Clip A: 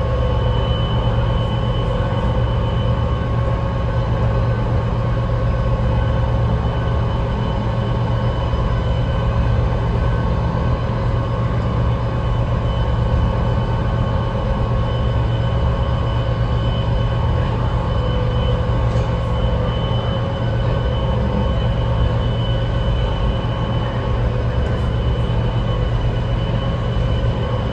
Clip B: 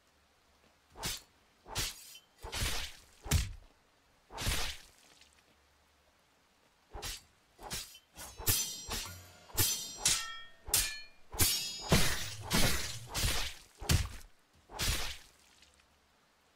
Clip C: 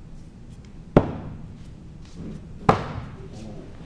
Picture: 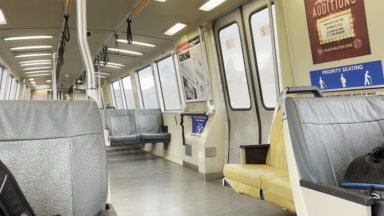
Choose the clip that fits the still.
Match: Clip A